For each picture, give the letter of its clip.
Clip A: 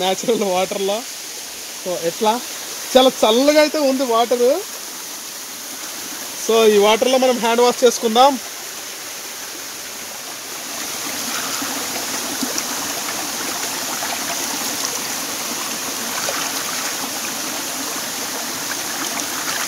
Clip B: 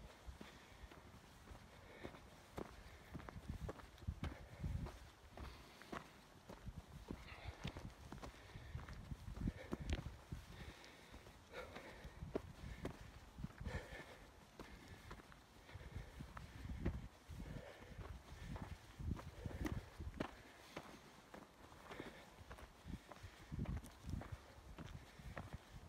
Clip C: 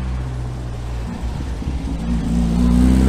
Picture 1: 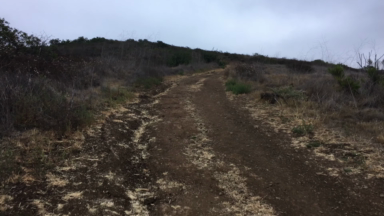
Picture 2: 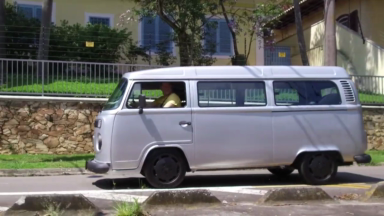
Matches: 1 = B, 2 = C